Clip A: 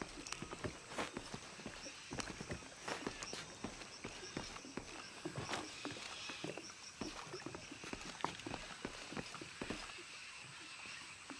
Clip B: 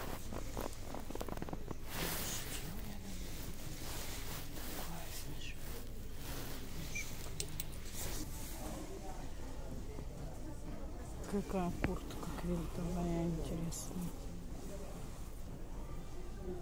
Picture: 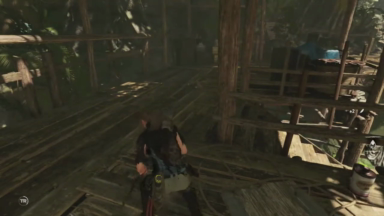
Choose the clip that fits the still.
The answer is A